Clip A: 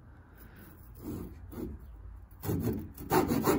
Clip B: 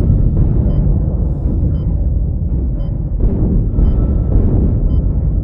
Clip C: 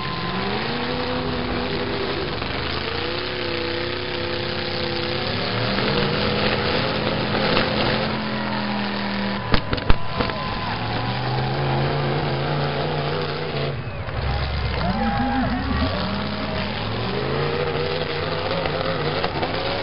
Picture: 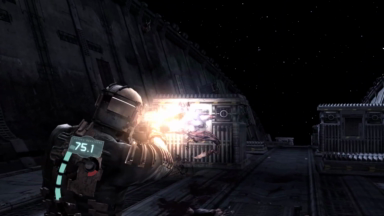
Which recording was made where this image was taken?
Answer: B